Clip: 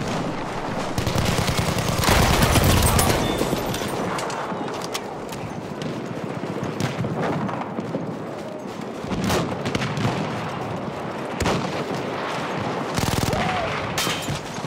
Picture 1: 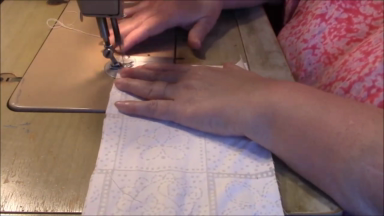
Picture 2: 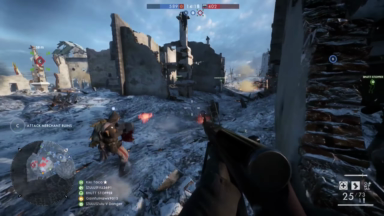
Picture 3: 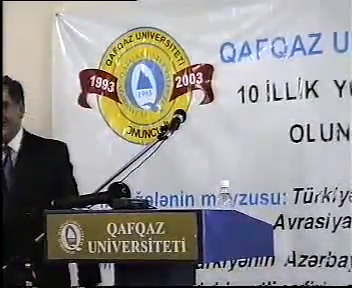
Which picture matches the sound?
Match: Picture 2